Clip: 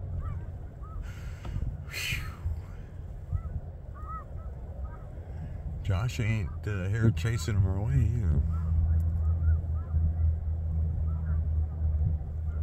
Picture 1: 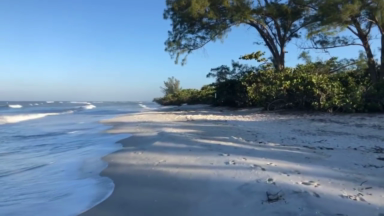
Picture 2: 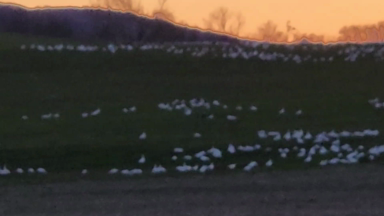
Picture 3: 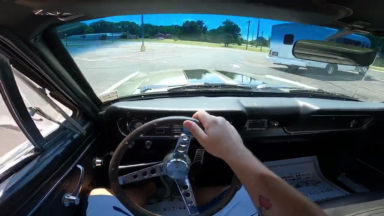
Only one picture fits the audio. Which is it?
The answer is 2